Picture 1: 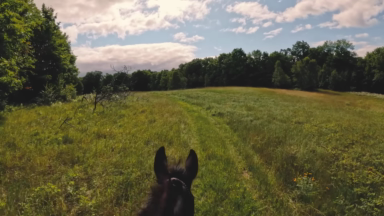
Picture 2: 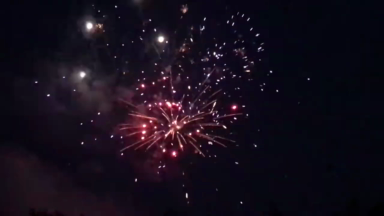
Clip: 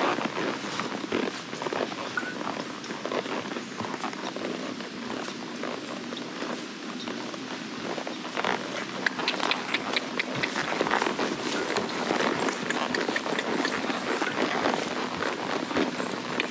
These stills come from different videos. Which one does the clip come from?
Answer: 1